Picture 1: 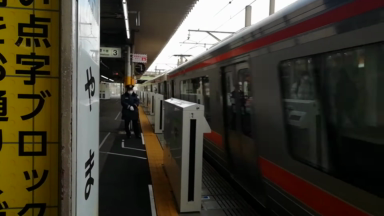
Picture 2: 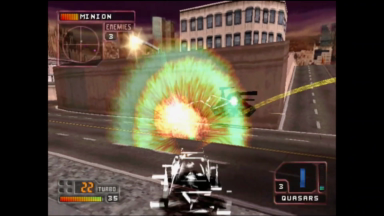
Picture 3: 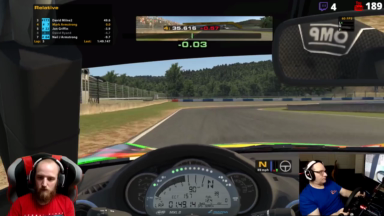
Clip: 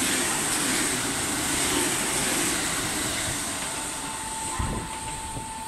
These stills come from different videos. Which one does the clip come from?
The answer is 1